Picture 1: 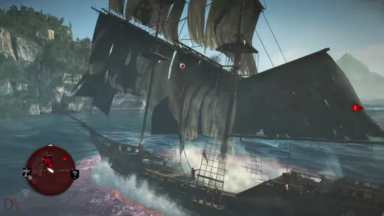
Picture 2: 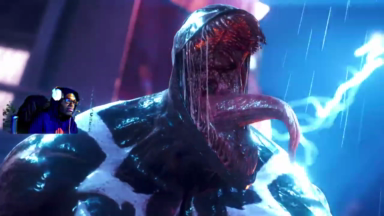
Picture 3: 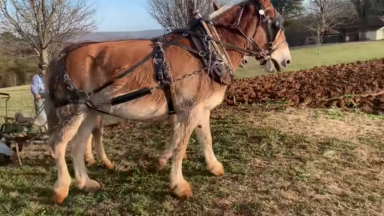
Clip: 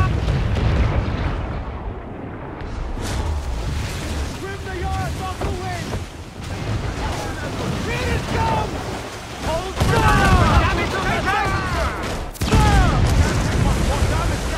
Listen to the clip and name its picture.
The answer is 1